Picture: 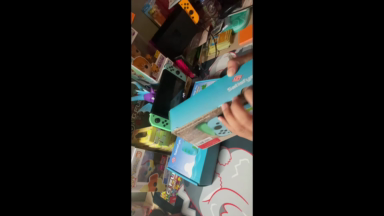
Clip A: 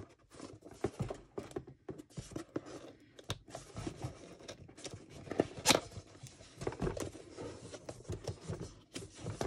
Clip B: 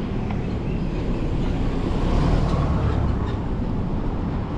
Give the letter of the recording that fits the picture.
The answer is A